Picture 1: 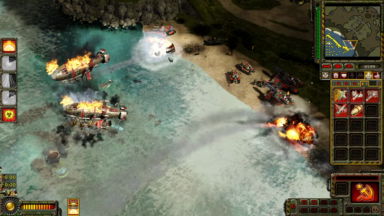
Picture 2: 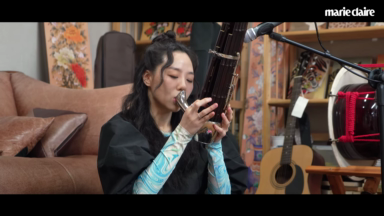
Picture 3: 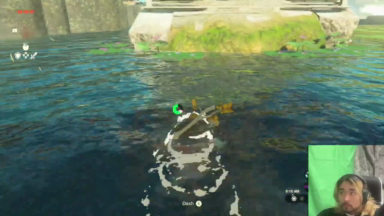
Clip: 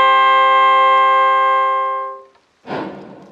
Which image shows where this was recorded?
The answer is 2